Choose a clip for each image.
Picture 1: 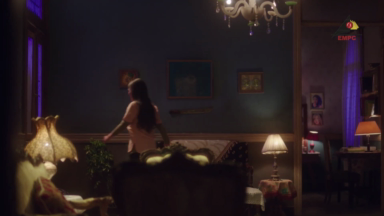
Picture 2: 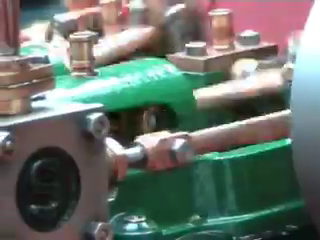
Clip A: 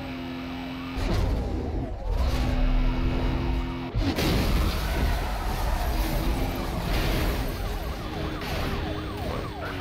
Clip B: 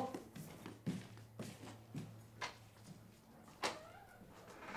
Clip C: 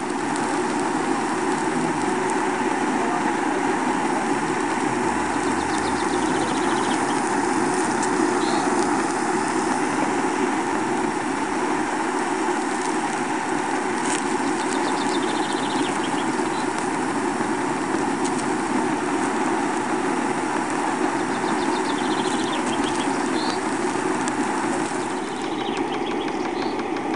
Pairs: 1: B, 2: C